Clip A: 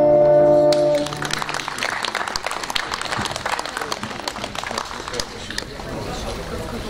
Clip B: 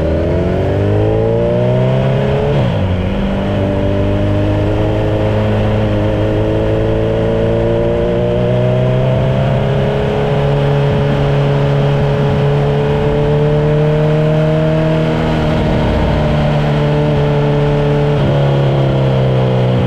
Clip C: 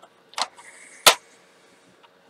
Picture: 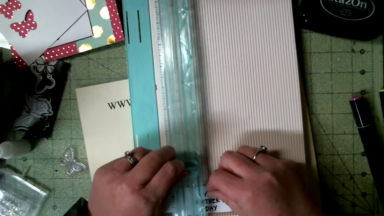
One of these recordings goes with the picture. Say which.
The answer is C